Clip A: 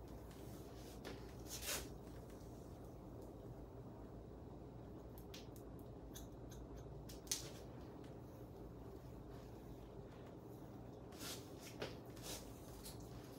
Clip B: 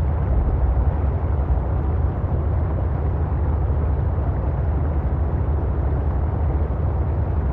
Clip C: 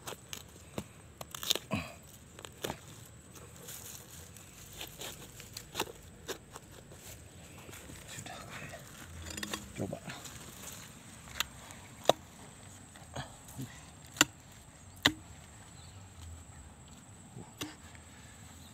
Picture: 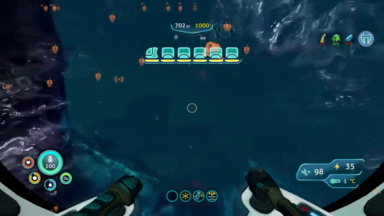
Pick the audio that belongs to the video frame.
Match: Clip B